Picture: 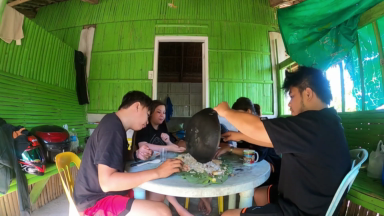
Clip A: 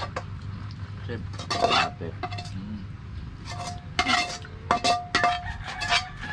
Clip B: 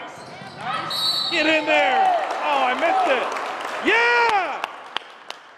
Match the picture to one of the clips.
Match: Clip A